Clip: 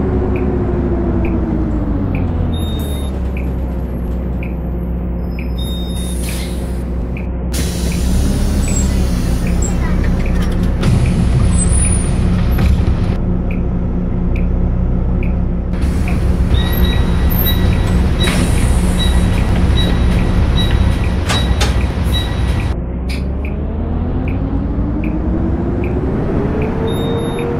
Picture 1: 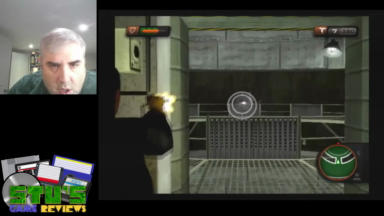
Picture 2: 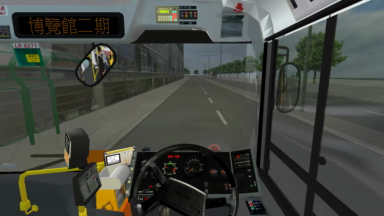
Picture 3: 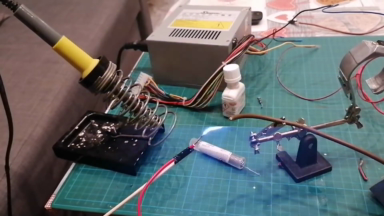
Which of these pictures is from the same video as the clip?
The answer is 2